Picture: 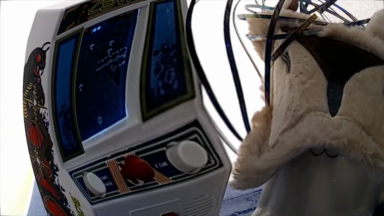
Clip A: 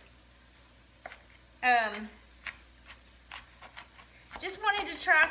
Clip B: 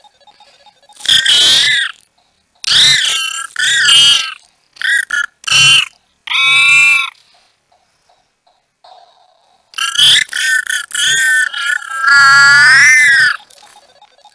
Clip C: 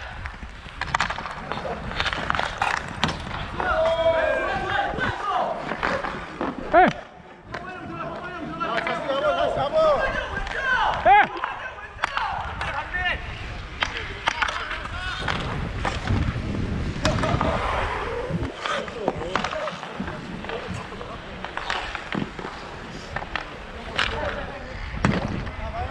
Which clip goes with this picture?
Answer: B